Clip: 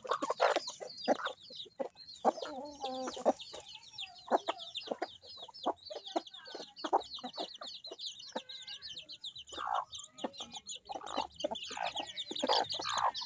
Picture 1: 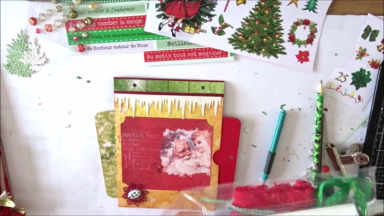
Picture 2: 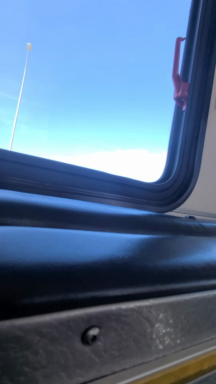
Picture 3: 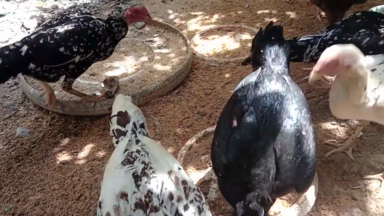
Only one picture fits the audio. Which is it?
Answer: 3